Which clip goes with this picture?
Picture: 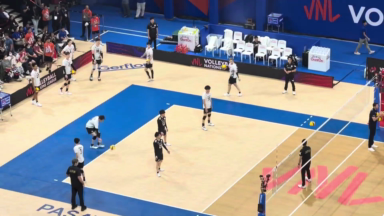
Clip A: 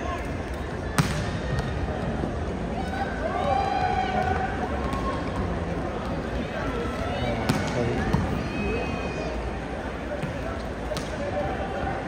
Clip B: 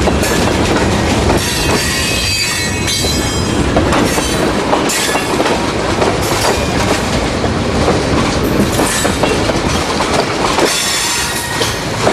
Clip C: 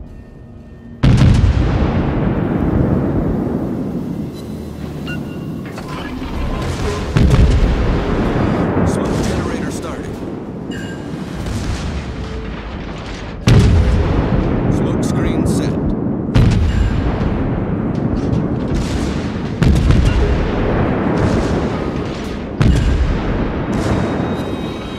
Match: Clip A